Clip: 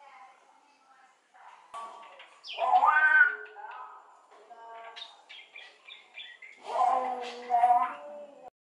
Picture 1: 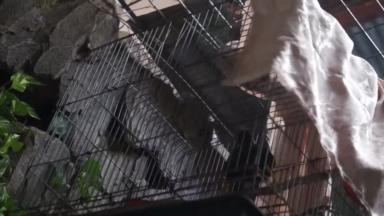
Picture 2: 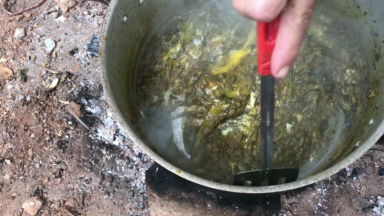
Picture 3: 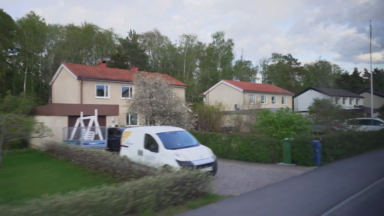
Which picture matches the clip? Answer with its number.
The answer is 1